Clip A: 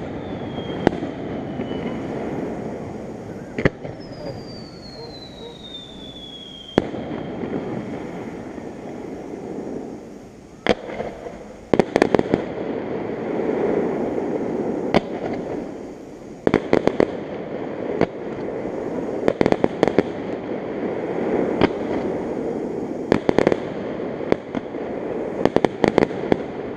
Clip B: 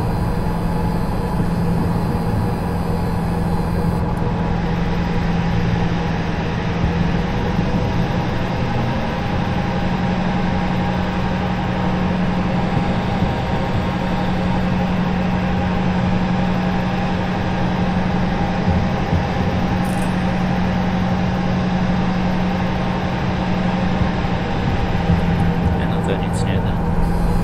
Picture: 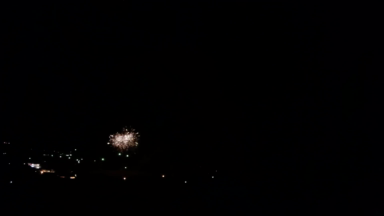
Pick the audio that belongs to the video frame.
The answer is A